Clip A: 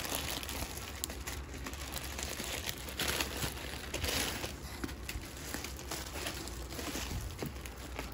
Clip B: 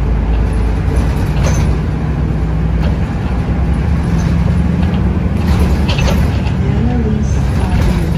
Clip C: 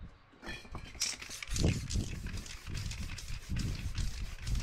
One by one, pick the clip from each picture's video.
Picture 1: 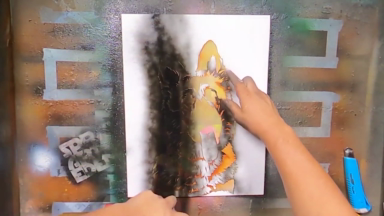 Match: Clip C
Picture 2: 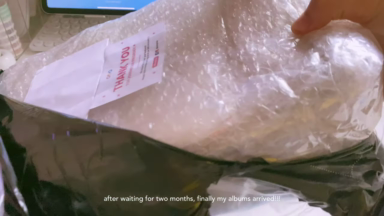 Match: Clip A